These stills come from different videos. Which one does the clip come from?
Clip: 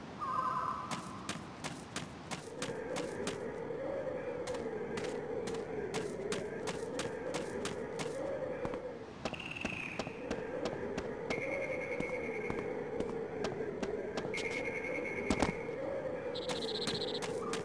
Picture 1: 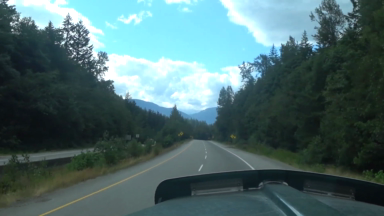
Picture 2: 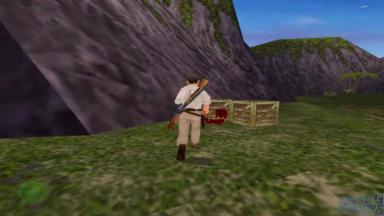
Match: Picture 2